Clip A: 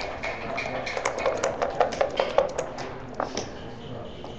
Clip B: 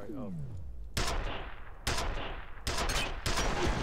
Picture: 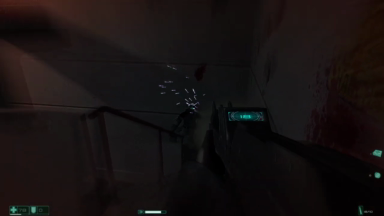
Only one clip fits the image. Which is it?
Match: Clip B